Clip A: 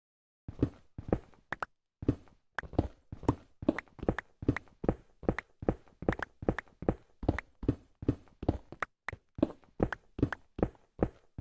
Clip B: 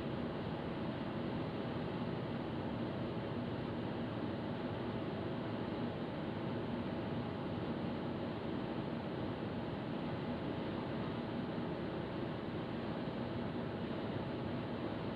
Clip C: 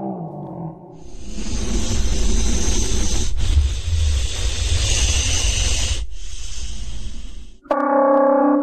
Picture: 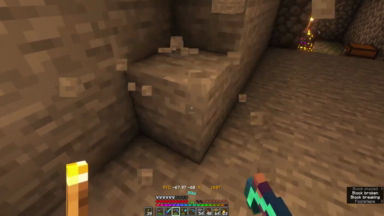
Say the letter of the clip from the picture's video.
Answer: A